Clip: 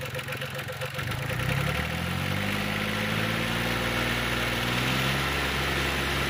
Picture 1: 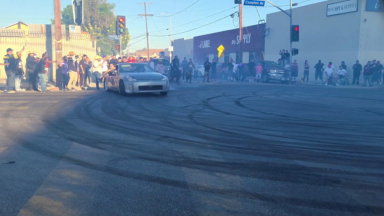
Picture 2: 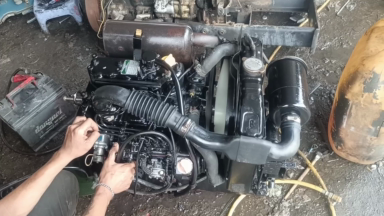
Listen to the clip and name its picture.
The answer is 2